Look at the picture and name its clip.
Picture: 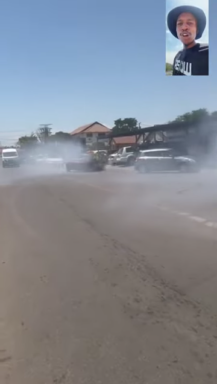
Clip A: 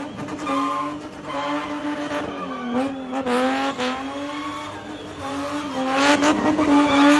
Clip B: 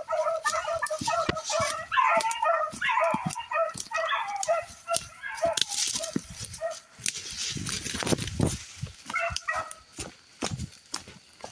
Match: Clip A